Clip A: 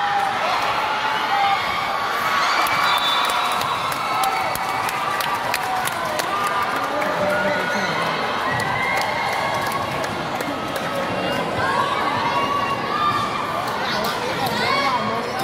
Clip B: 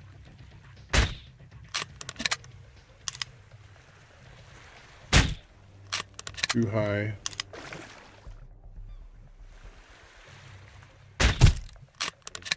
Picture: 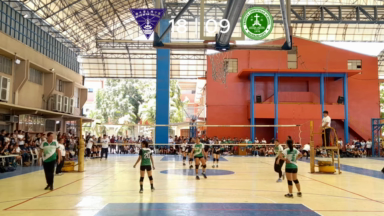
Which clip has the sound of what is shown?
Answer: A